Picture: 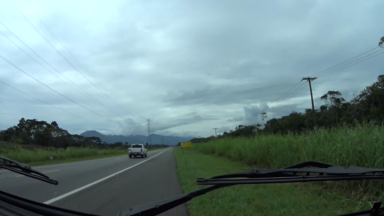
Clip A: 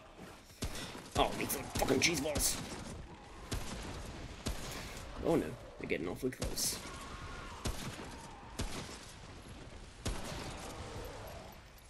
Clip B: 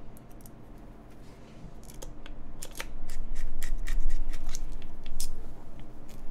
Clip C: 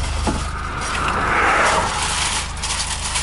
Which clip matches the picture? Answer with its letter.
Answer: C